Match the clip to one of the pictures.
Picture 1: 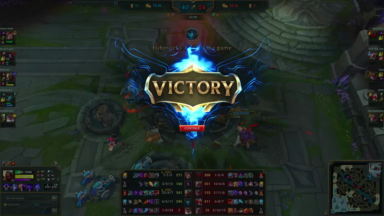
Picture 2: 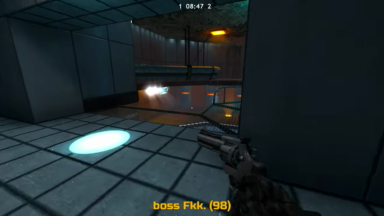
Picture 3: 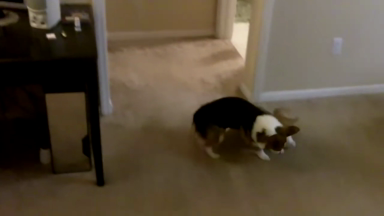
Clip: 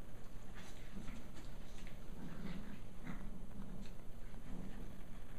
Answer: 3